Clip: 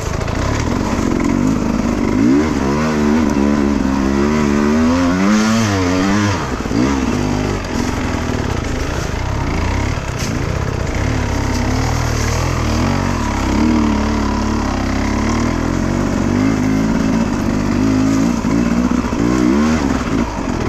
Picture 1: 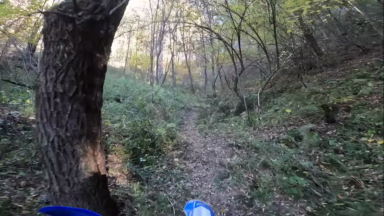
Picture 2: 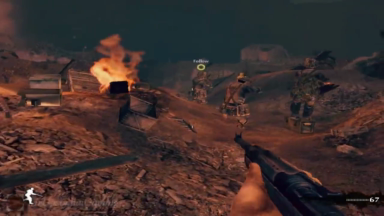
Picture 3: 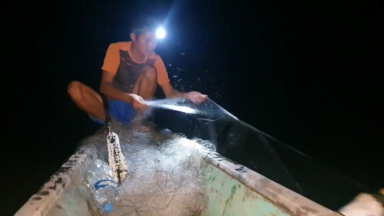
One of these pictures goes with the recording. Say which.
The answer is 1